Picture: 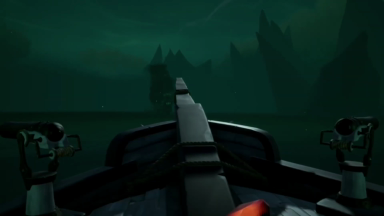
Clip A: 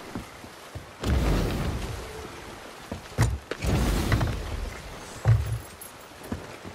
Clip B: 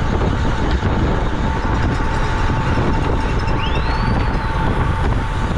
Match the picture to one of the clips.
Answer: A